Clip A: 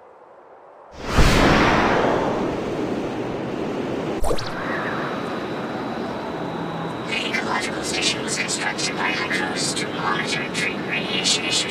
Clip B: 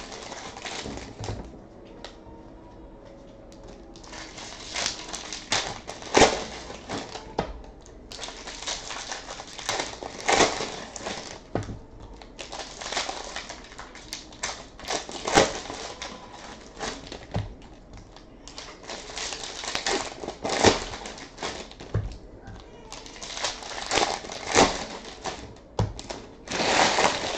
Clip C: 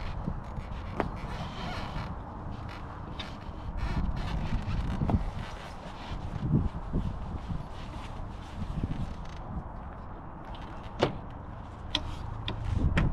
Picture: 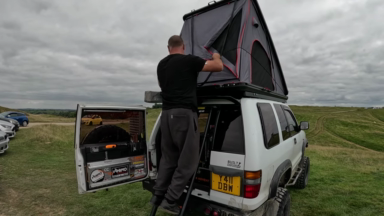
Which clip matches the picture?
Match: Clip C